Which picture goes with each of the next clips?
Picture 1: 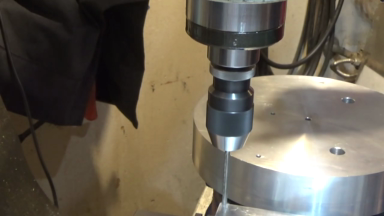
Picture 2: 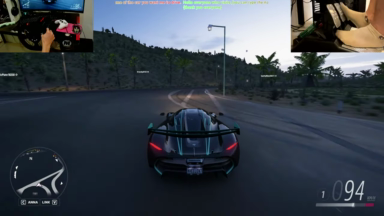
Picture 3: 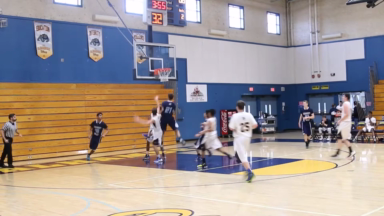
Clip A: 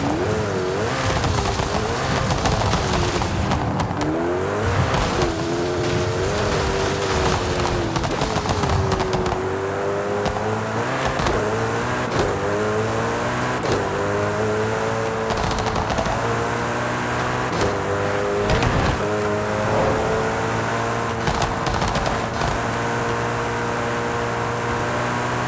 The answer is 2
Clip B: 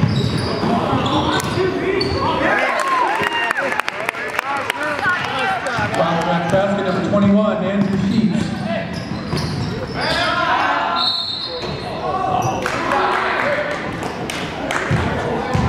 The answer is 3